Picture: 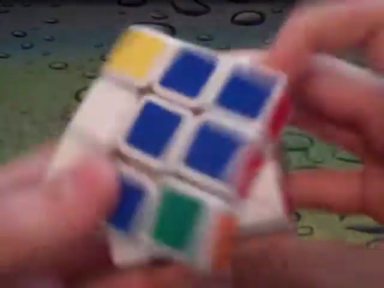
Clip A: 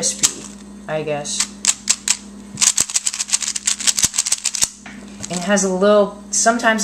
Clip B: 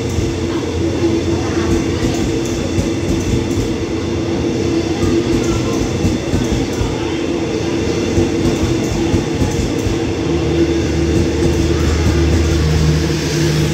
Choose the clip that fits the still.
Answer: A